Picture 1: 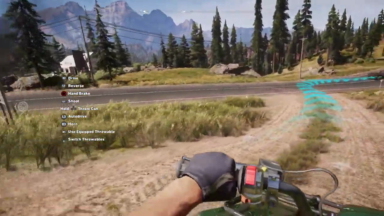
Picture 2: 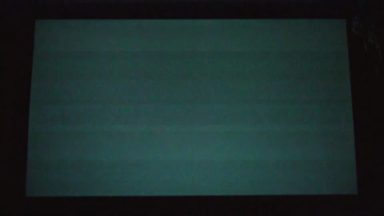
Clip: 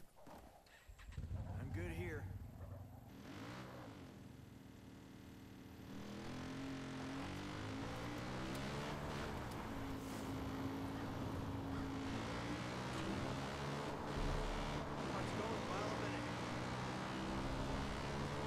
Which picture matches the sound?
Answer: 1